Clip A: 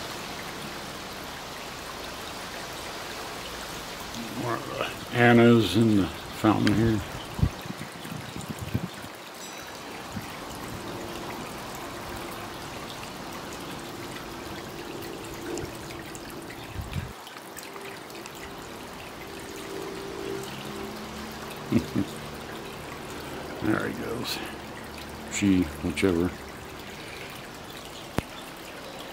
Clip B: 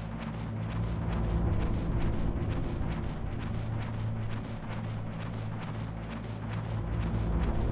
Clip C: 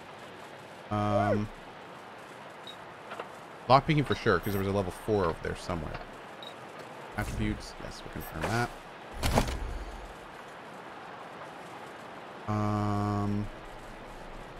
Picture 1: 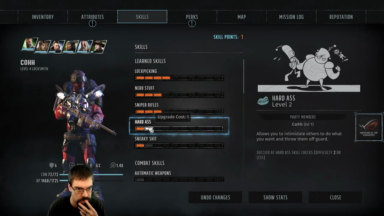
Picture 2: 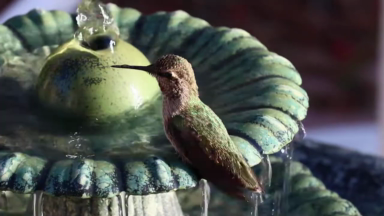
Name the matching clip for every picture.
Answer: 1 C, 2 A